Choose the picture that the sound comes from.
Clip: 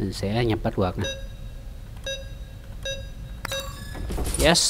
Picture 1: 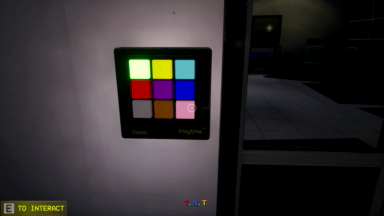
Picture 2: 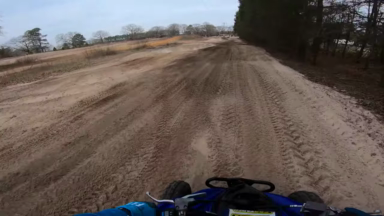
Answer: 1